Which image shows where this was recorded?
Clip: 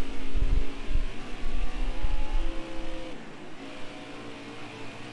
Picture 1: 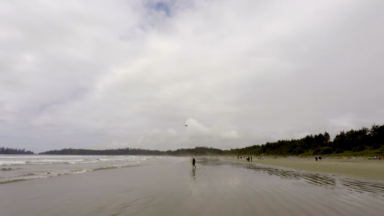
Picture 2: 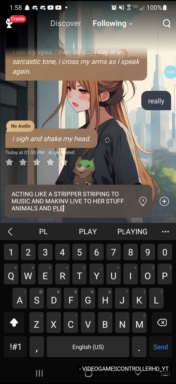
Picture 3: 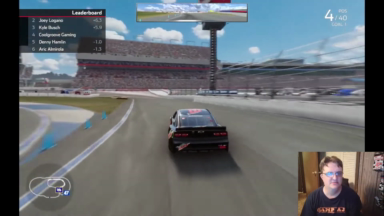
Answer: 3